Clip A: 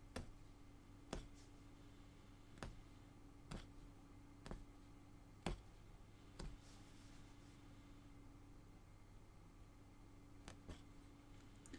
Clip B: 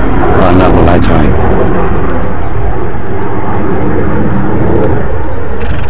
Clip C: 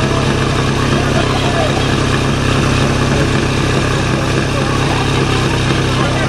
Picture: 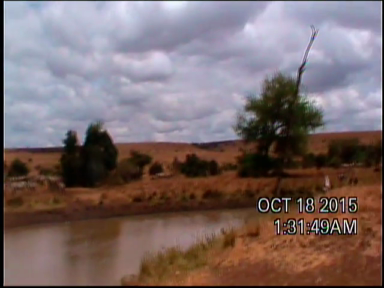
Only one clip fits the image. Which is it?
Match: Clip B